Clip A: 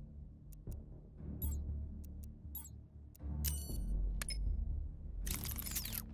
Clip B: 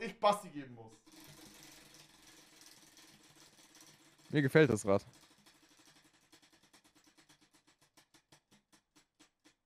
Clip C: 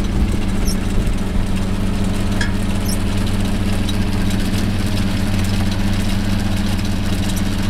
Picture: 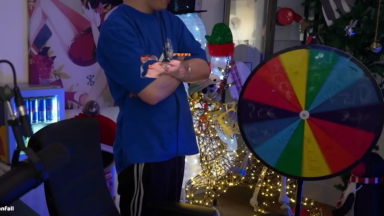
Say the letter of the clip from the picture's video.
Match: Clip B